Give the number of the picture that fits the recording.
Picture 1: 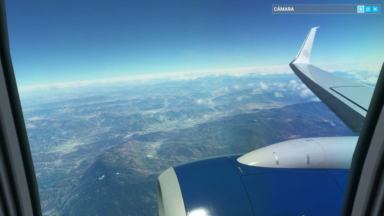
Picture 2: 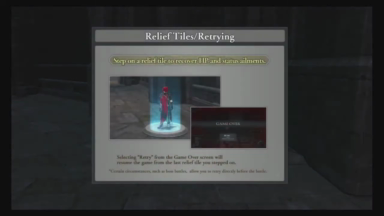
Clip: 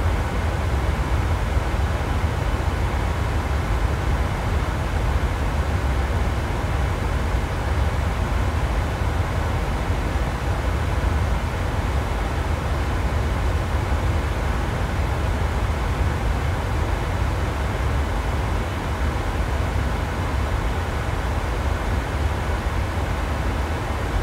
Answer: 1